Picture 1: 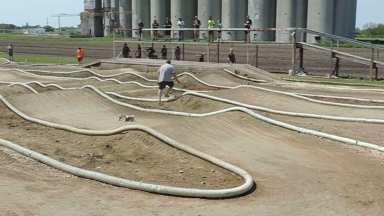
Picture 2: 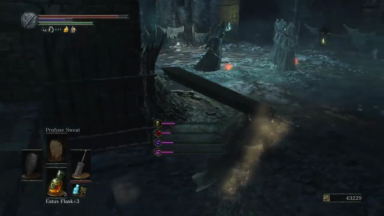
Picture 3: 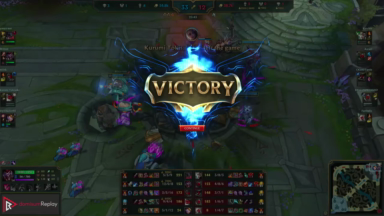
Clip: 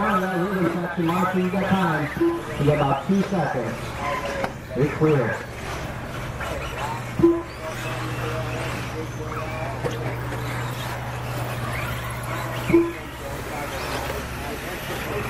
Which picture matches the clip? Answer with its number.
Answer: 1